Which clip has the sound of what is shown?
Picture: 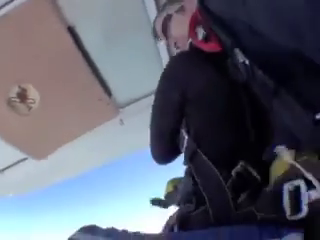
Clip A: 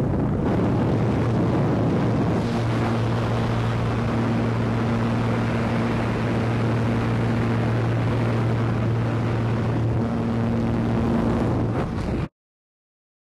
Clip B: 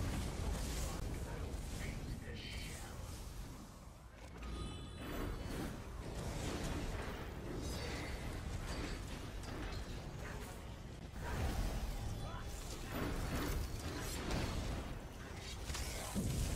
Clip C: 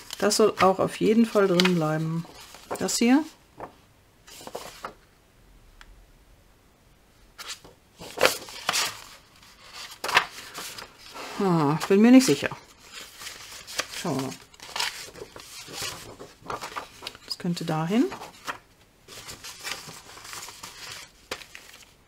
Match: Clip A